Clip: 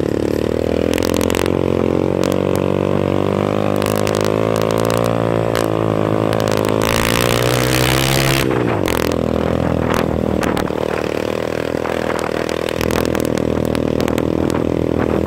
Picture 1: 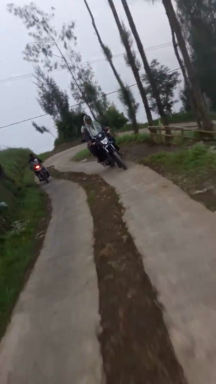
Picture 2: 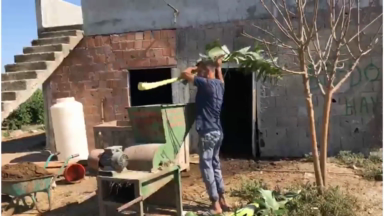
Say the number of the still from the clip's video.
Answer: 1